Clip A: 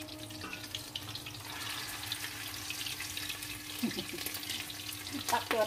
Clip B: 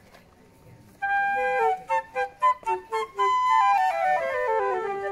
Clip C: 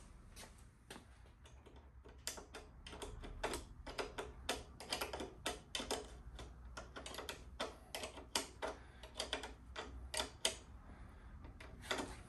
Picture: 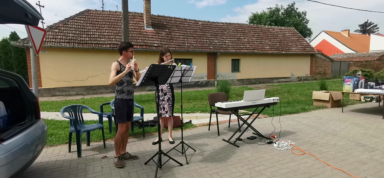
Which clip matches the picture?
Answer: B